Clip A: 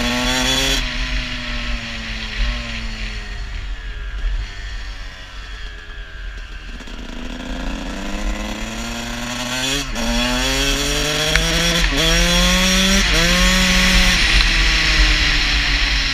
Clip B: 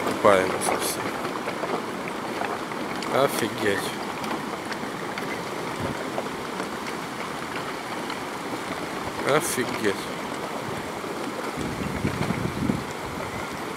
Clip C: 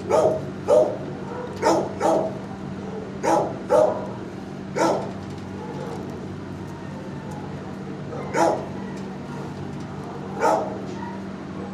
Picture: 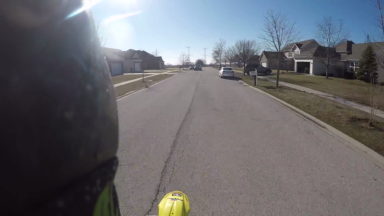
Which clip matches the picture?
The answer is A